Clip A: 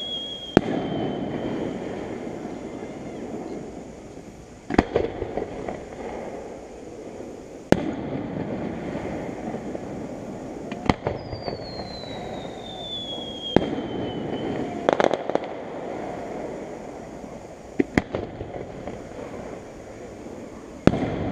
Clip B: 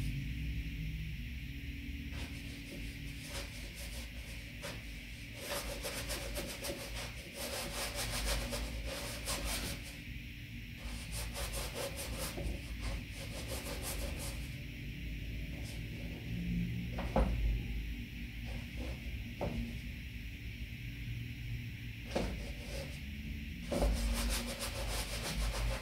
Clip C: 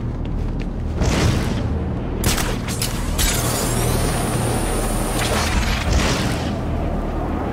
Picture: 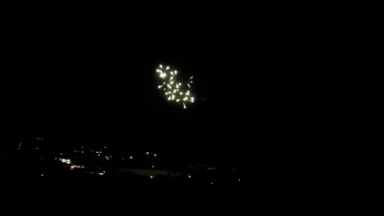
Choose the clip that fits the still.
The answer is A